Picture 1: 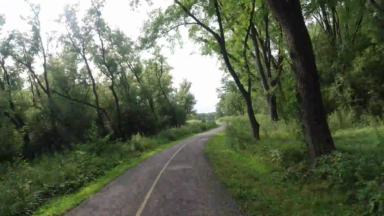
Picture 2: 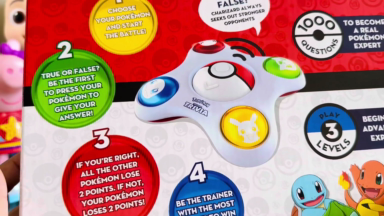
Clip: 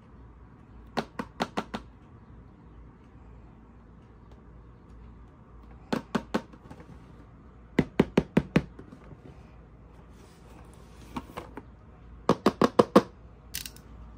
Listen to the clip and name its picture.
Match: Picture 2